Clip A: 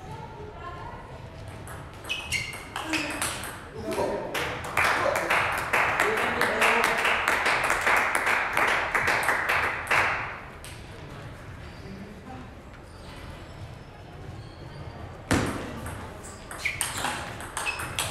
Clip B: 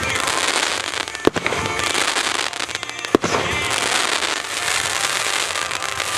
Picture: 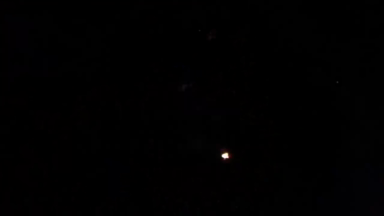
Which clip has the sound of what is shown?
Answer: B